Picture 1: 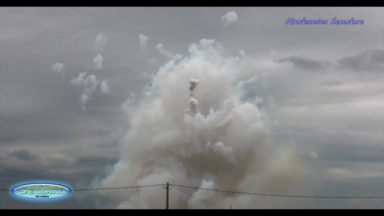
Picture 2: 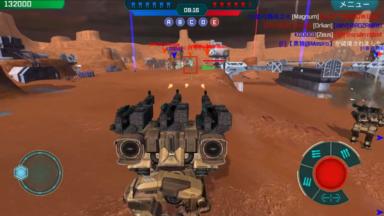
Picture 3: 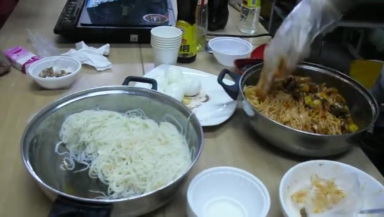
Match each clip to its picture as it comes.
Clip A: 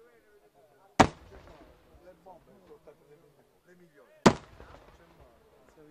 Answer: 1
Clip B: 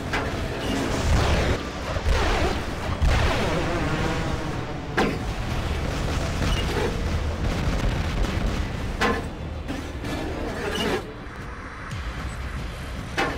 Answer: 2